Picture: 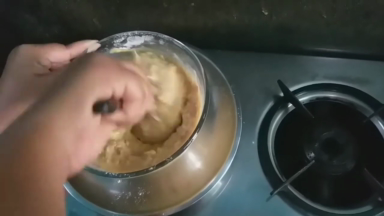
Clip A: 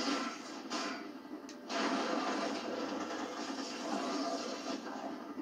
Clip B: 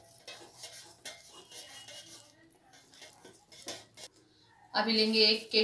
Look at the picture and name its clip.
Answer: B